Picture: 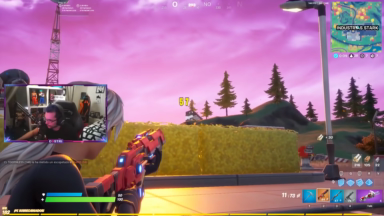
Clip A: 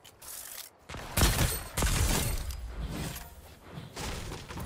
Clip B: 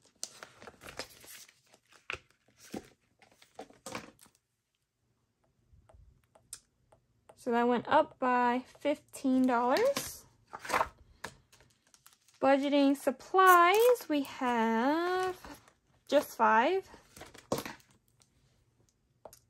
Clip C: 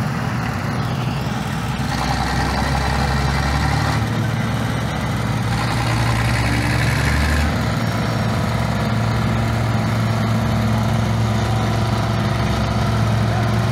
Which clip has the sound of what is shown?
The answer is A